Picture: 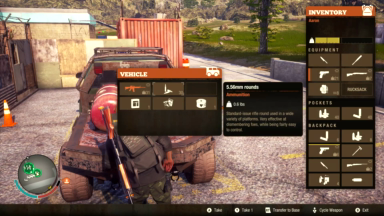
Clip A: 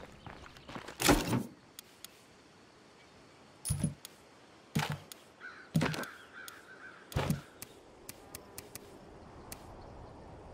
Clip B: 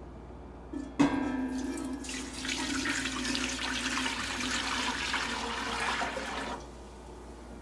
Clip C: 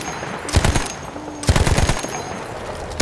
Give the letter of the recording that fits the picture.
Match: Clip A